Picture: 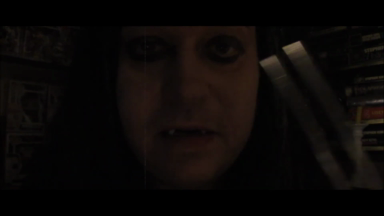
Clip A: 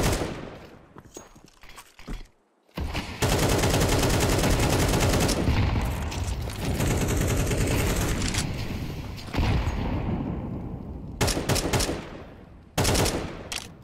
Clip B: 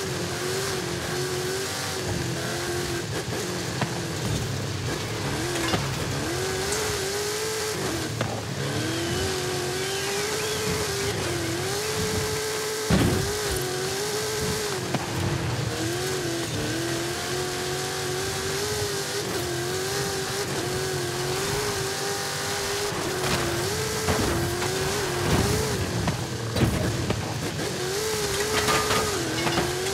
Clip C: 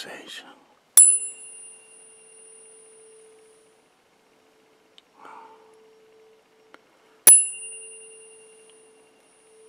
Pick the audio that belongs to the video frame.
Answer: C